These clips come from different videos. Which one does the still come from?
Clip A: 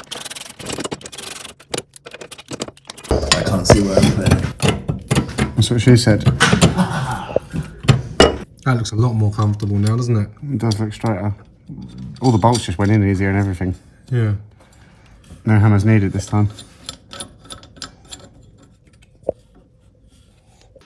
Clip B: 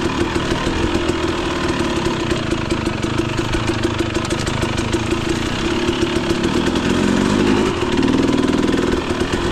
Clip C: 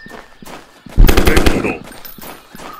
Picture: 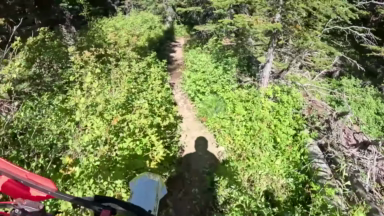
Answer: B